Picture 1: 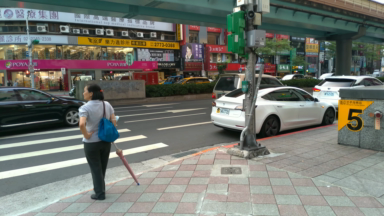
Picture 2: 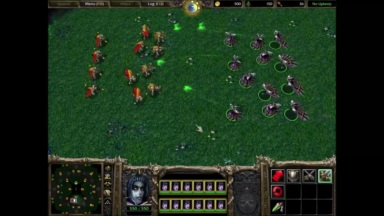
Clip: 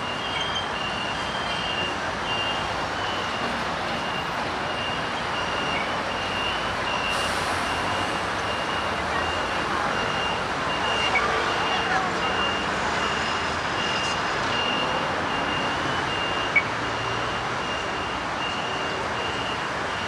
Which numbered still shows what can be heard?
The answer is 1